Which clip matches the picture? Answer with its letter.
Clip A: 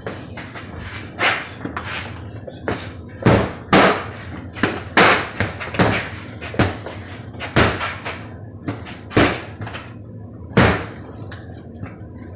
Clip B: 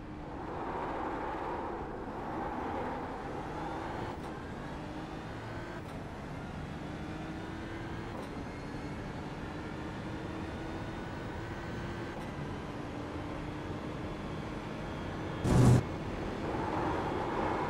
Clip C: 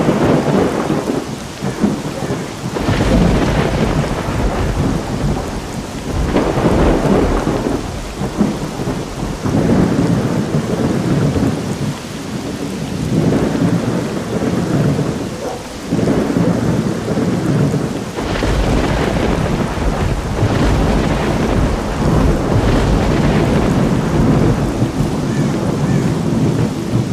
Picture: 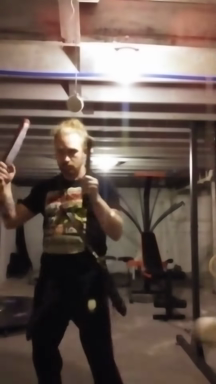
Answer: A